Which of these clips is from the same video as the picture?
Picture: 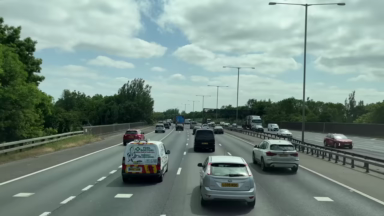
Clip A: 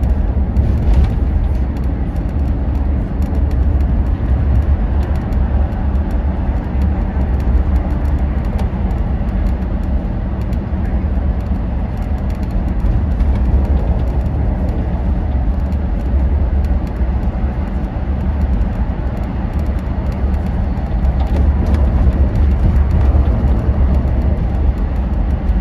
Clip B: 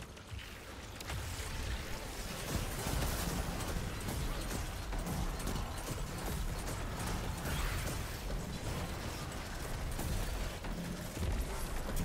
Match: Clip A